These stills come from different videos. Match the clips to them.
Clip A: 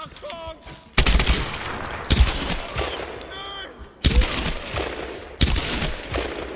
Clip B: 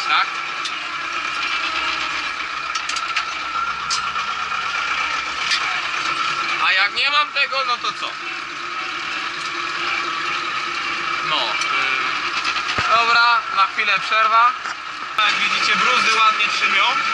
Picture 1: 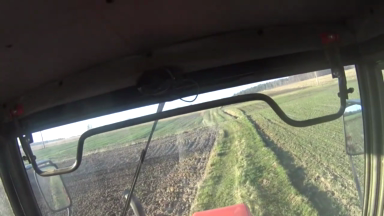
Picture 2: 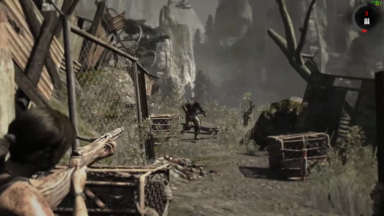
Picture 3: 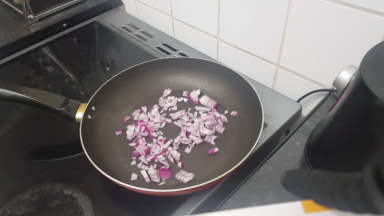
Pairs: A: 2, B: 1